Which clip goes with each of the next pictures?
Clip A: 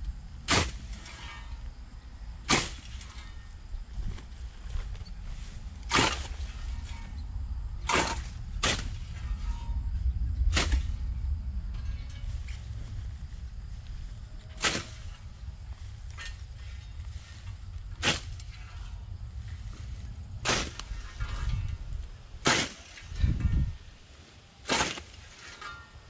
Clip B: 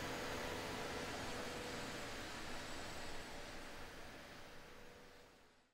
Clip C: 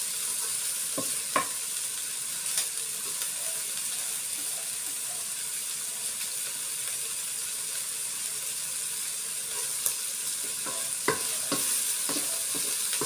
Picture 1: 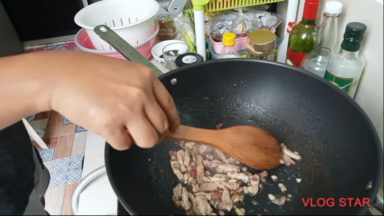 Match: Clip C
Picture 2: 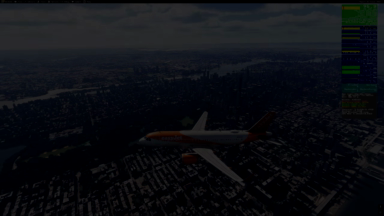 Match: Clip B